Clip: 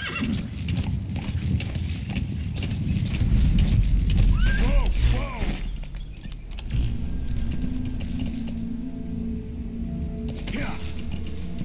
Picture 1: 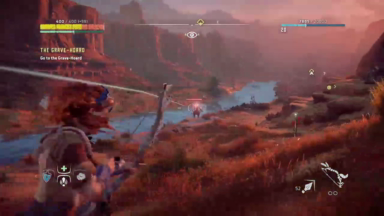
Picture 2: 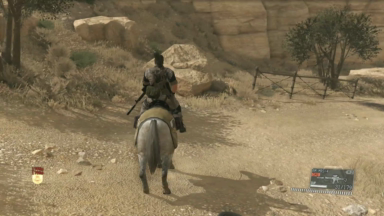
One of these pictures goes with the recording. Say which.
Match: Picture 2